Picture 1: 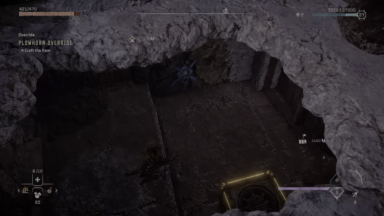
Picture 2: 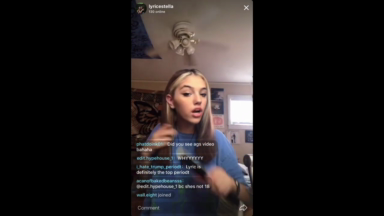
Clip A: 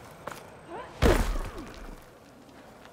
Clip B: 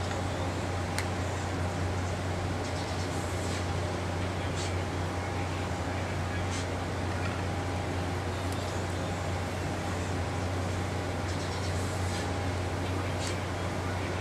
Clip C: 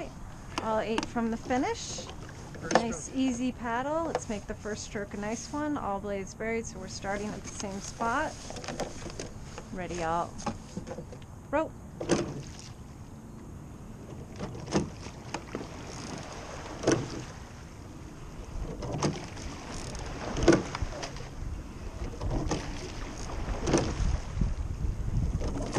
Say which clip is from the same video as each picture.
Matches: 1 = A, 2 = B